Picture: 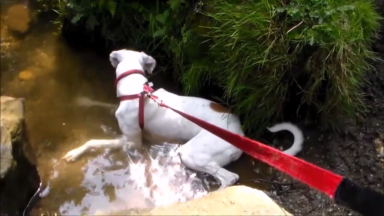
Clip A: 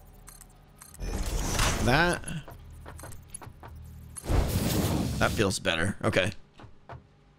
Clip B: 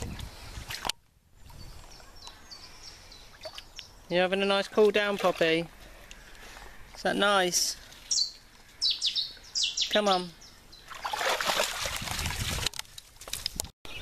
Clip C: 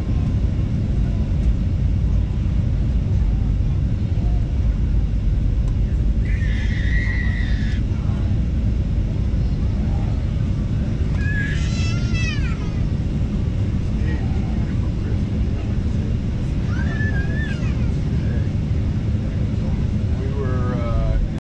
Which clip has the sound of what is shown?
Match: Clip B